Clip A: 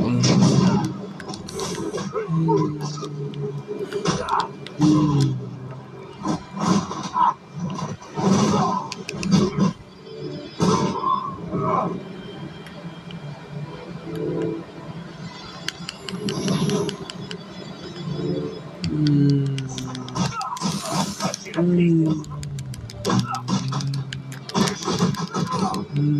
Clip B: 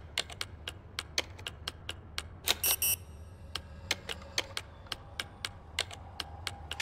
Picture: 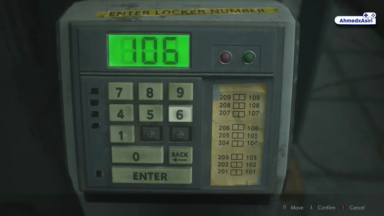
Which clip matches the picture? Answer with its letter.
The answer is B